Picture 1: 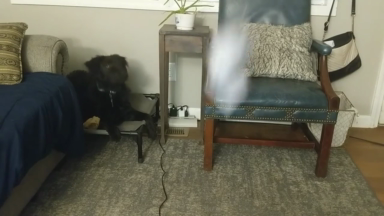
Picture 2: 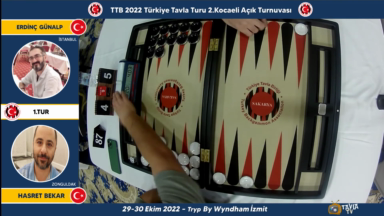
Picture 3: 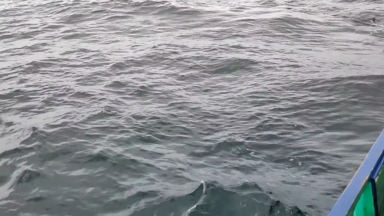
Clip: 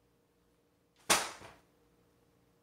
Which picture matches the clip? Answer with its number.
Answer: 1